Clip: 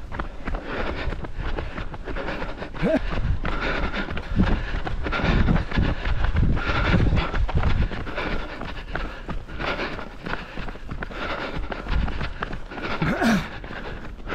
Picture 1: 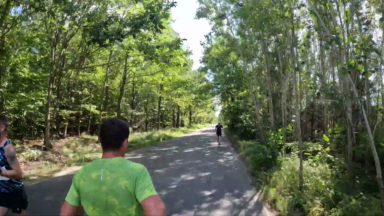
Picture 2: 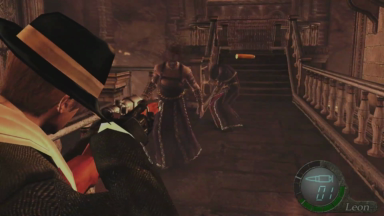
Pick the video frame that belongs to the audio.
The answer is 1